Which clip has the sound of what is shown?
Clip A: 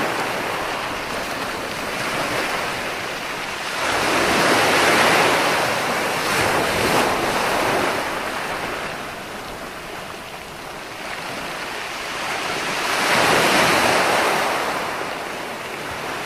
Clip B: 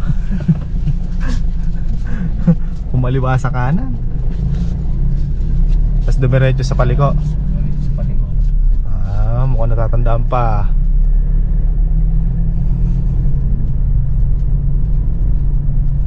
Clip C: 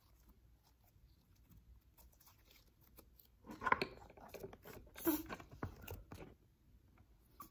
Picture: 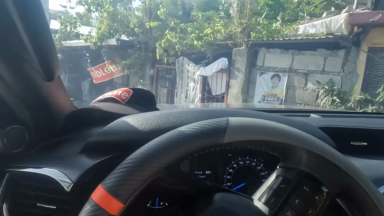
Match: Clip B